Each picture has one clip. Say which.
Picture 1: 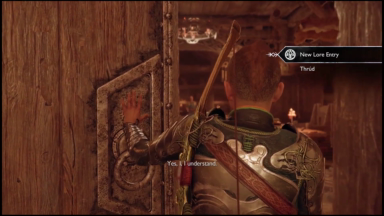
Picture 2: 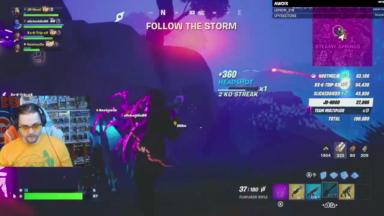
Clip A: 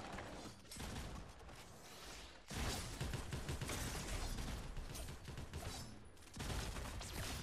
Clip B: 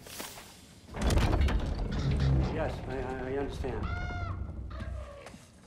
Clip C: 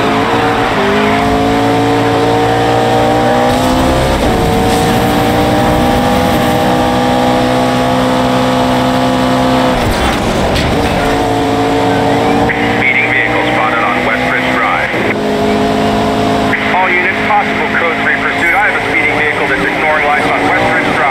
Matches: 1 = B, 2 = A